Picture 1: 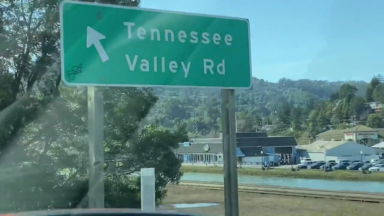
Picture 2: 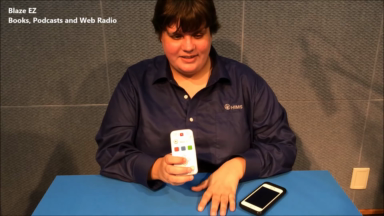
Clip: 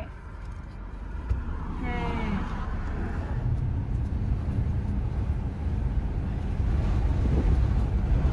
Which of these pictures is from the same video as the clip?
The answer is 1